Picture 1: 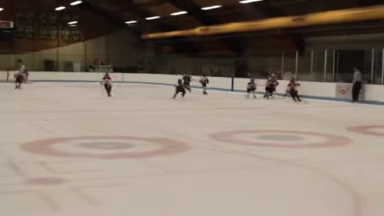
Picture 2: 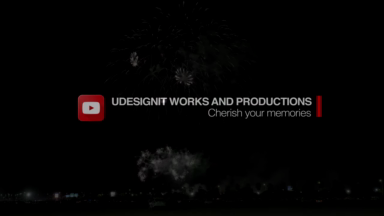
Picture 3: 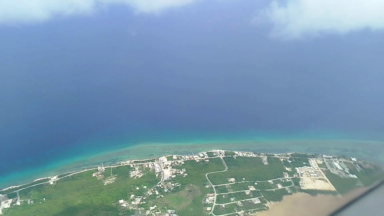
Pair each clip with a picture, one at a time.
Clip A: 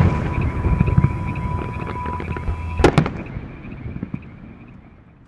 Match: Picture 2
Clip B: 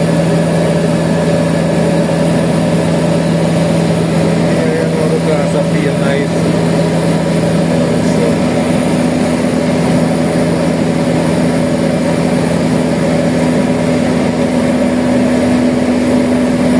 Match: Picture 3